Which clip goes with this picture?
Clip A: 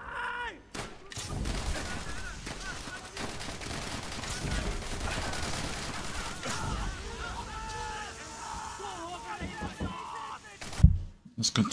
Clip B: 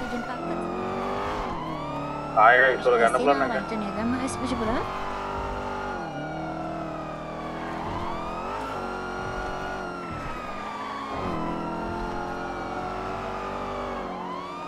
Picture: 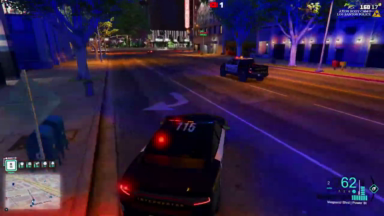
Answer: B